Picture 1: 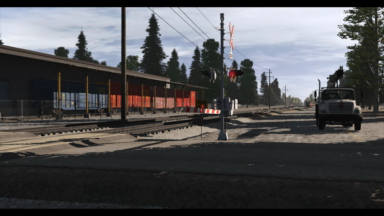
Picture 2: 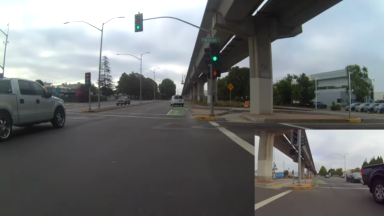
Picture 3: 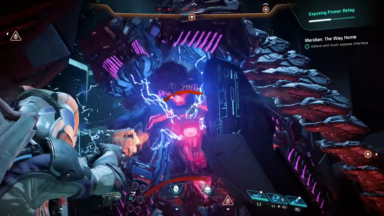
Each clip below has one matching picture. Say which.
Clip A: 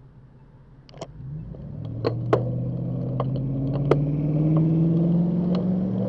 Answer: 2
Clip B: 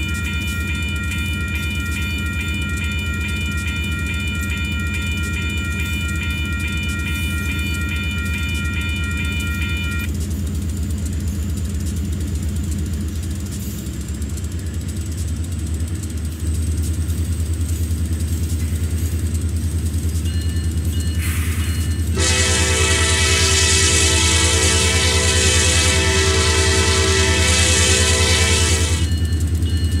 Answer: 1